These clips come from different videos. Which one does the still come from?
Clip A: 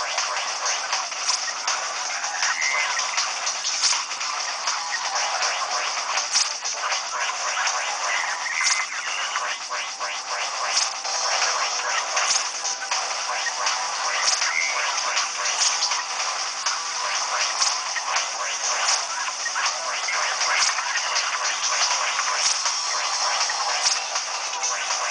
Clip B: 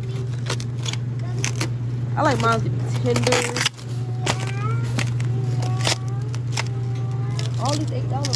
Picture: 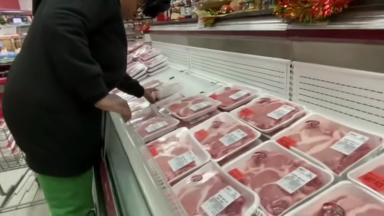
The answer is B